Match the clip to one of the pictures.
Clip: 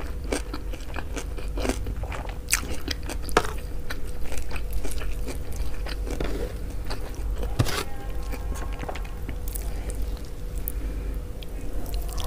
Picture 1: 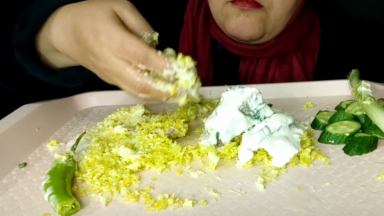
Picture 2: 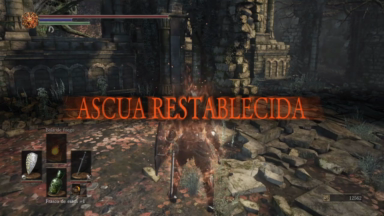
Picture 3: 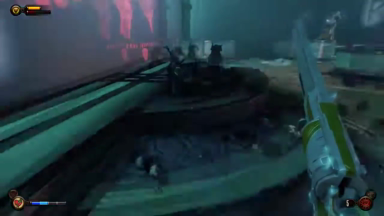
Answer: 1